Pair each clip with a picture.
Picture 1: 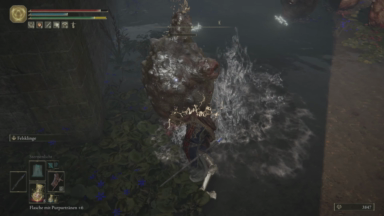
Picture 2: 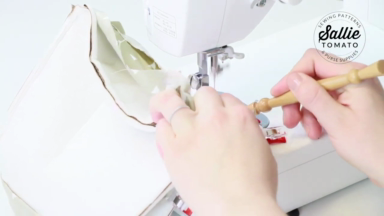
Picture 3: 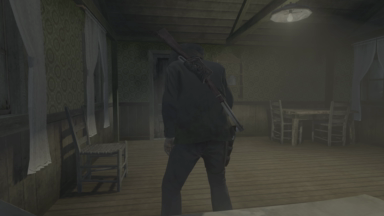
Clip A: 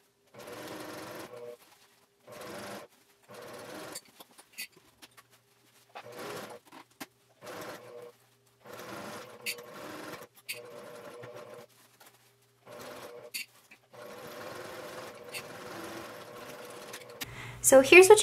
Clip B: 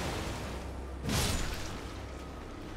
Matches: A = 2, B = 1